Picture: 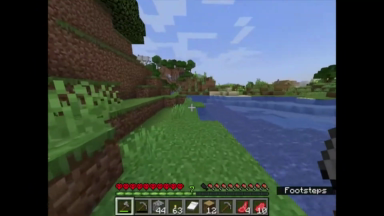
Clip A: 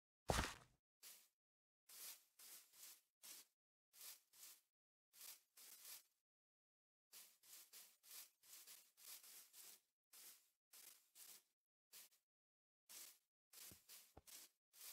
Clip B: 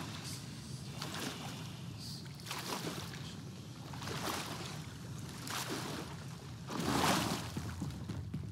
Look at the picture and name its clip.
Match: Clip A